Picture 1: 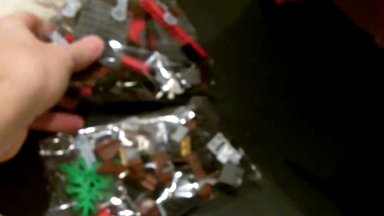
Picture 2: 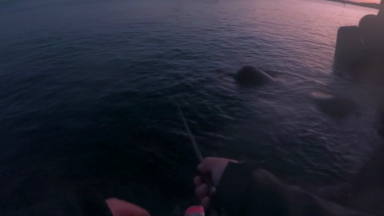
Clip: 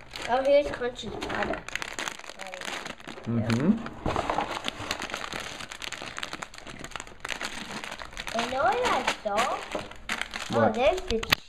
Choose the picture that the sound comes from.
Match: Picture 1